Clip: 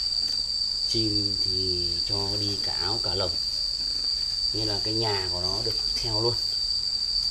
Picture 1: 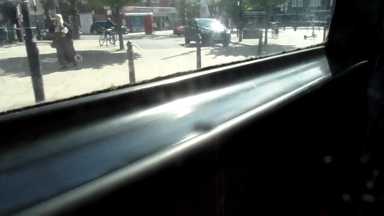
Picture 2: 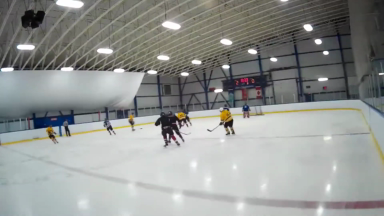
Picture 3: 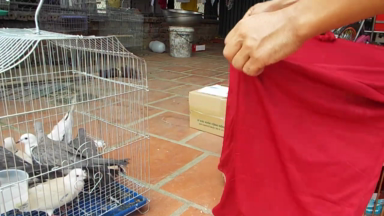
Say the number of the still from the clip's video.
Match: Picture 3